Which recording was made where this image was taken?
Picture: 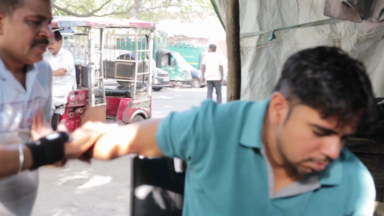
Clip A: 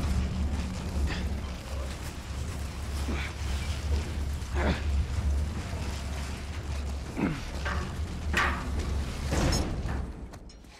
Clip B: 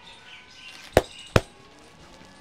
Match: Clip B